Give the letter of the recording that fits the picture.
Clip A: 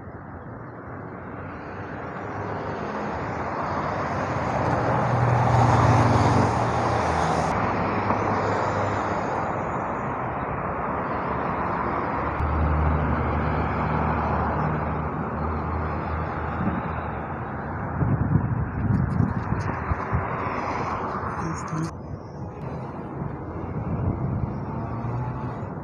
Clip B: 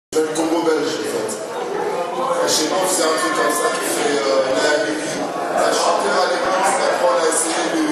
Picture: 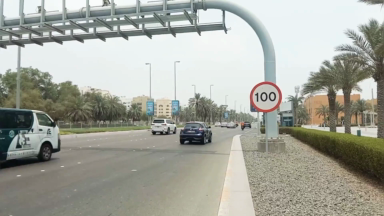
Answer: A